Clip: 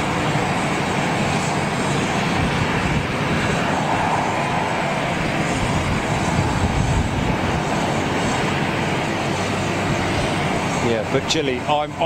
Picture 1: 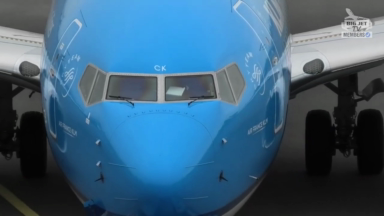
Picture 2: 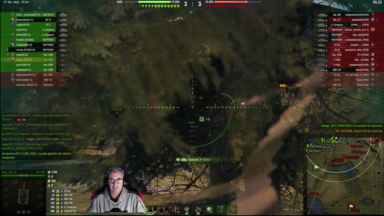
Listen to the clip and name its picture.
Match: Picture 1